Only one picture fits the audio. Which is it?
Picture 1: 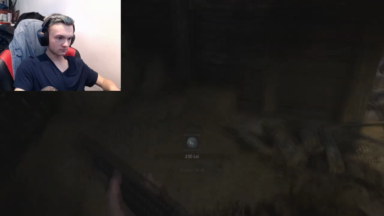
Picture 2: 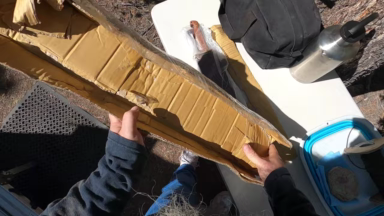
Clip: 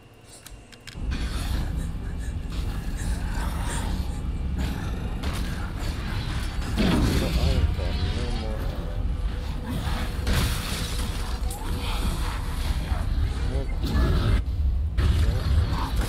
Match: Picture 1